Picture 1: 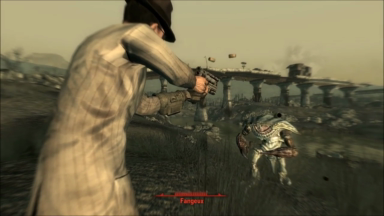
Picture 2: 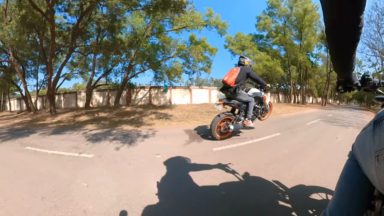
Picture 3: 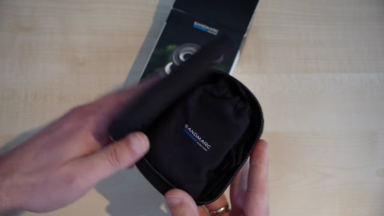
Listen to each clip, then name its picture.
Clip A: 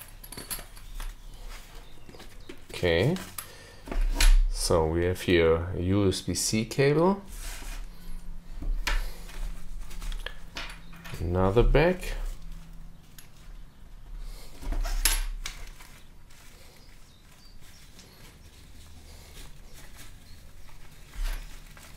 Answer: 3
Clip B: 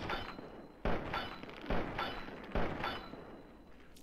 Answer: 1